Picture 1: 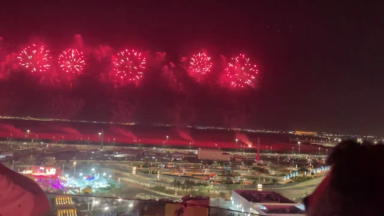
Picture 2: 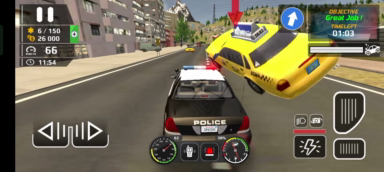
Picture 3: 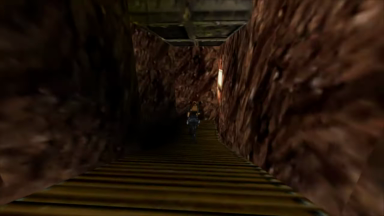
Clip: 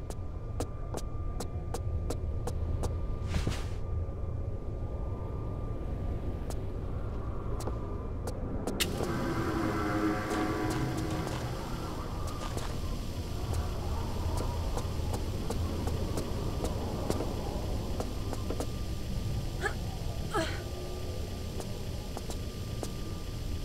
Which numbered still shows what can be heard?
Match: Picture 3